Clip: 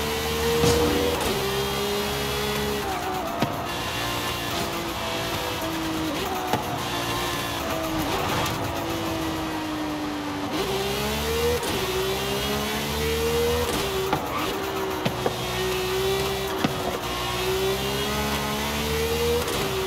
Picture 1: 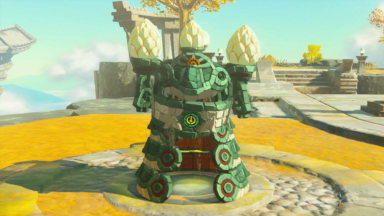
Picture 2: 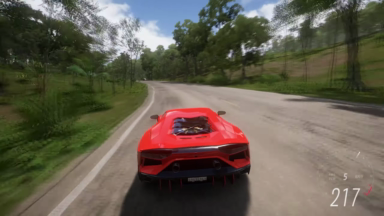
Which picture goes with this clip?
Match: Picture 2